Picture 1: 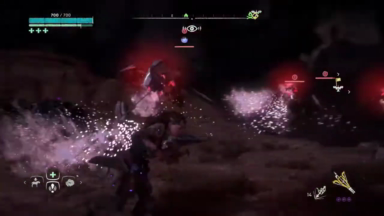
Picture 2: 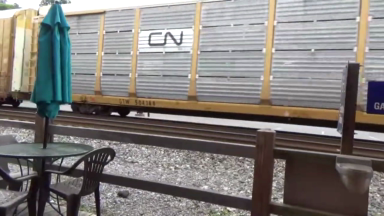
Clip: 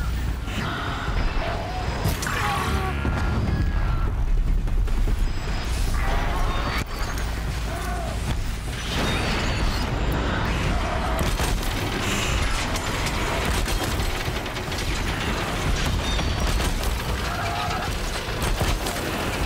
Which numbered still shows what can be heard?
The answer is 1